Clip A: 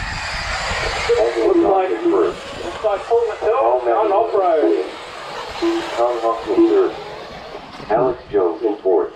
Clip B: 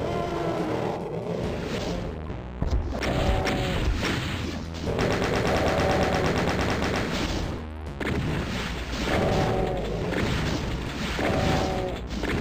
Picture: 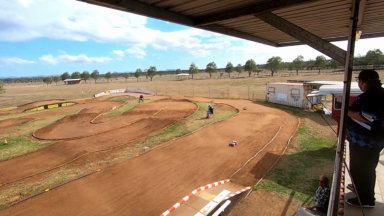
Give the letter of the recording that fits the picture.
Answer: A